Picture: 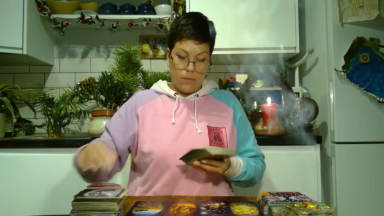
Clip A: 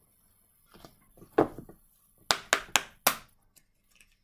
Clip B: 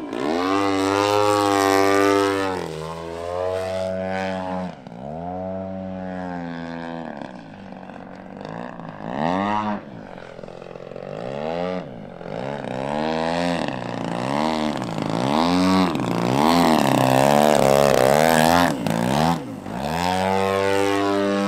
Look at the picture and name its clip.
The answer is A